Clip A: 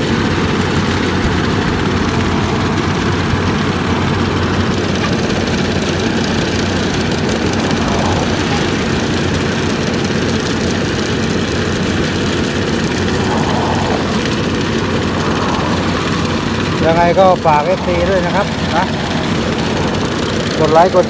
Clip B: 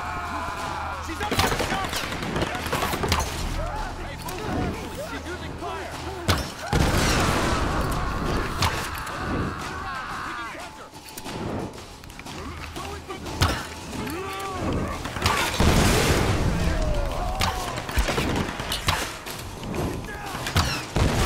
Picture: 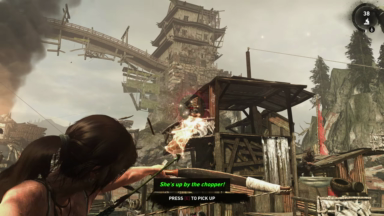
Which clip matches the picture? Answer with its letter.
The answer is B